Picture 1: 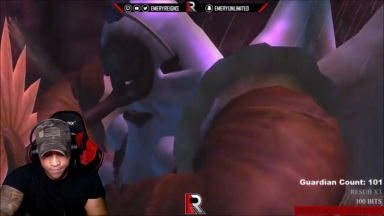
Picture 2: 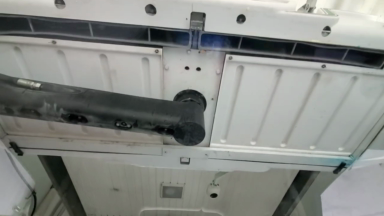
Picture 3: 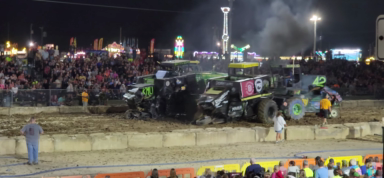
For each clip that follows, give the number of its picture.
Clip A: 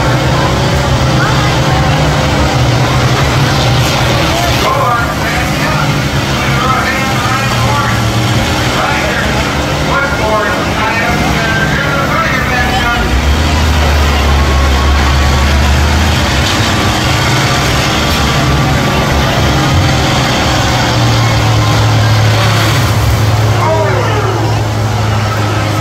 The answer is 3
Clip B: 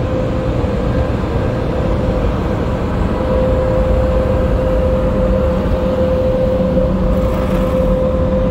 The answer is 2